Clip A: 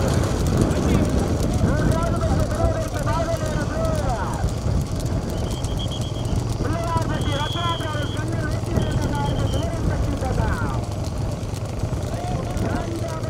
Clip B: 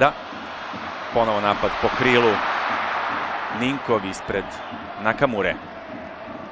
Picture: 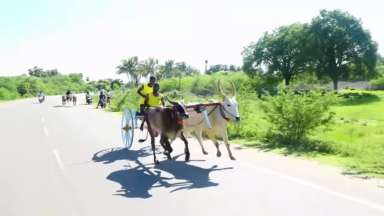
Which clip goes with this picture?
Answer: A